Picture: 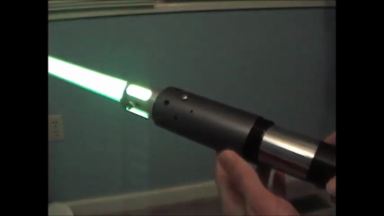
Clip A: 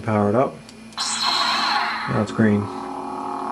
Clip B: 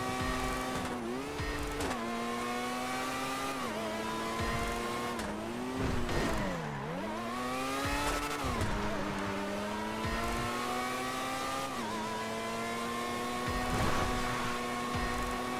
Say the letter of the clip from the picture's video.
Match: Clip A